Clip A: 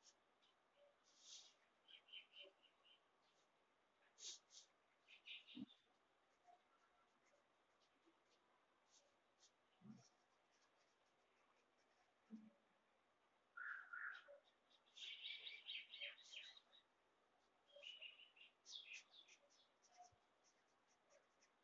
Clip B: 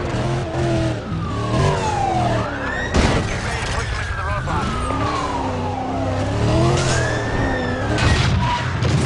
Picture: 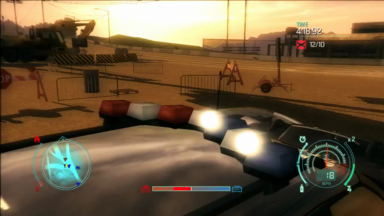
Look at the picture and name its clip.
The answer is B